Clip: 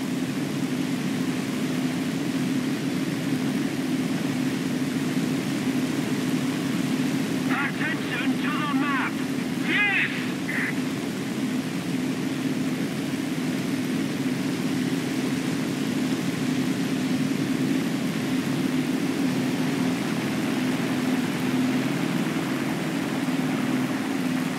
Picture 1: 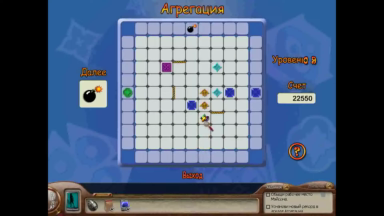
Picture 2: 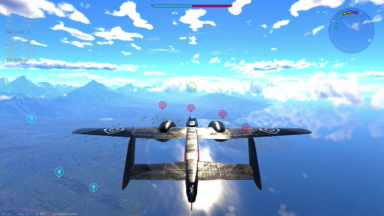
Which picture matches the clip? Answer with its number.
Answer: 2